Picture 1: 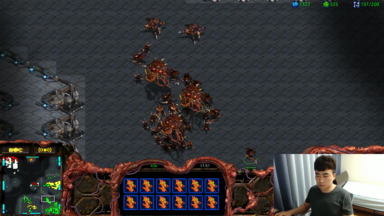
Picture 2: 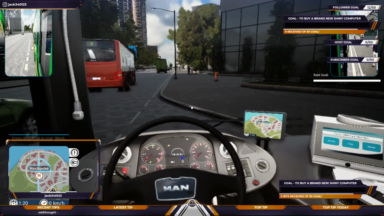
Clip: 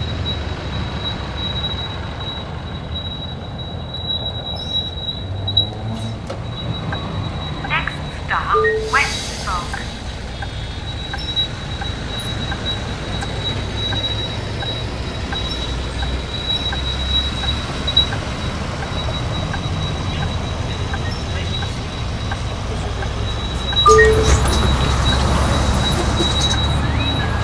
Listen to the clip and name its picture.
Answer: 2